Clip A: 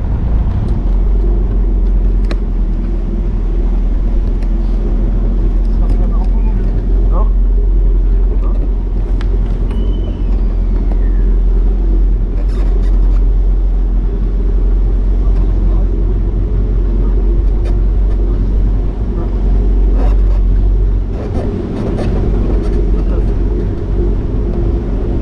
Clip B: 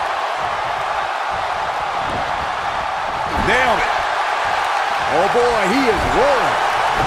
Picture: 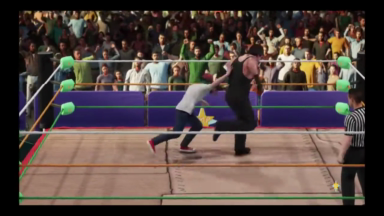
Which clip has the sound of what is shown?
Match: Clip B